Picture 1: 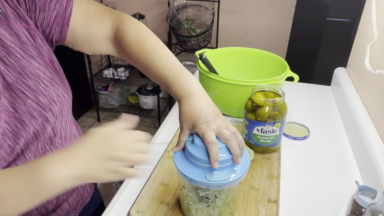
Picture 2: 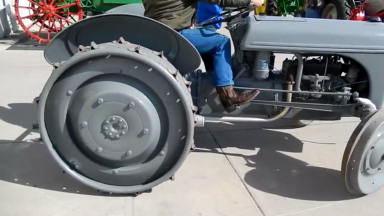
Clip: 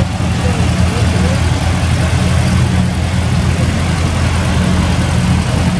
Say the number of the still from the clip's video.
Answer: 2